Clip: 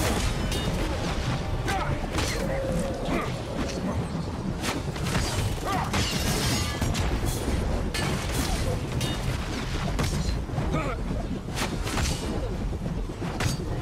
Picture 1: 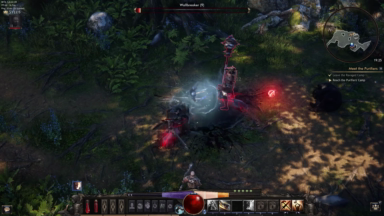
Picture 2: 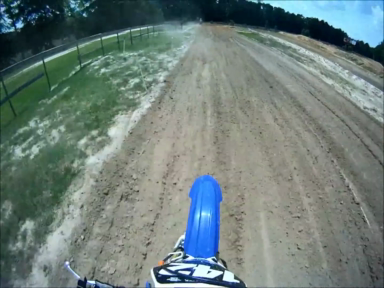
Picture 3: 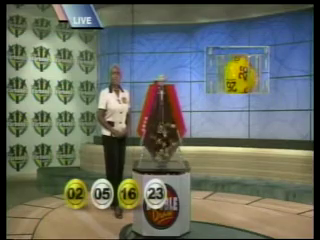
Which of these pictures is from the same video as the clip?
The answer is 1